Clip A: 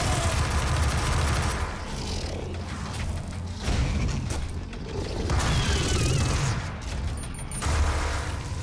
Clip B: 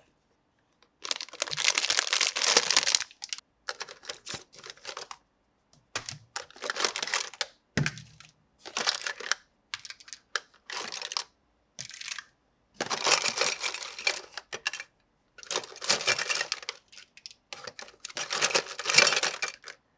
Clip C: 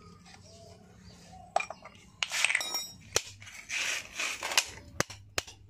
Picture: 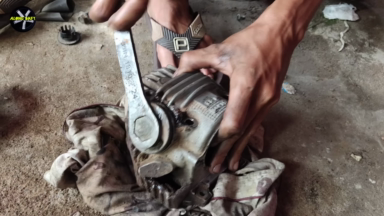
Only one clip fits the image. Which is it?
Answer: C